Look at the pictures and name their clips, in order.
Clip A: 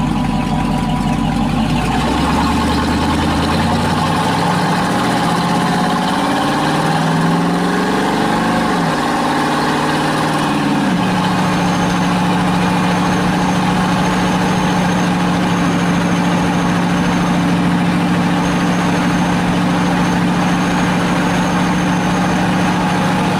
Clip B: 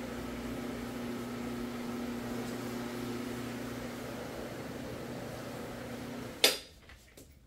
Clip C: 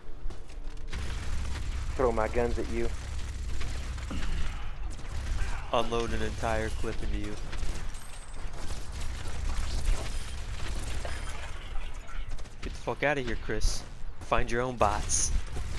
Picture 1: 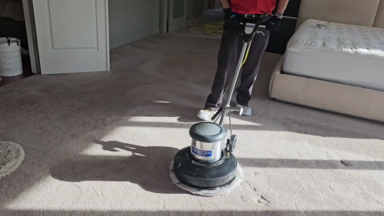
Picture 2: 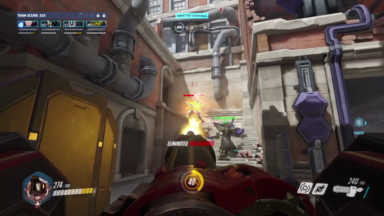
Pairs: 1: B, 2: C